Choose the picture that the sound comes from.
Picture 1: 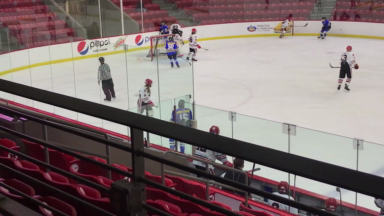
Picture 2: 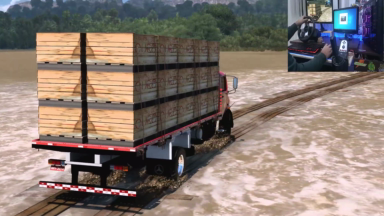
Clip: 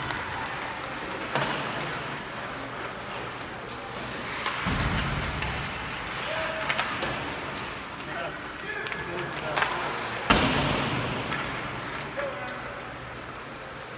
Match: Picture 1